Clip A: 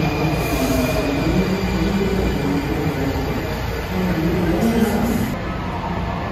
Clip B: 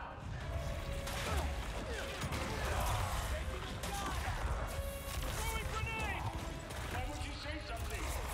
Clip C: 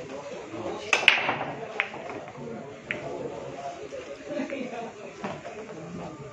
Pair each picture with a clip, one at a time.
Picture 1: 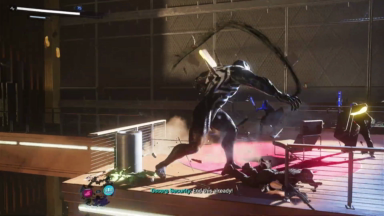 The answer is B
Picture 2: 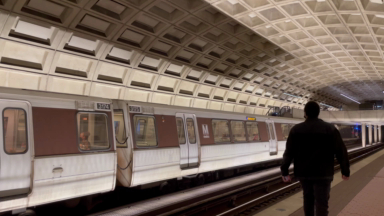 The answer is A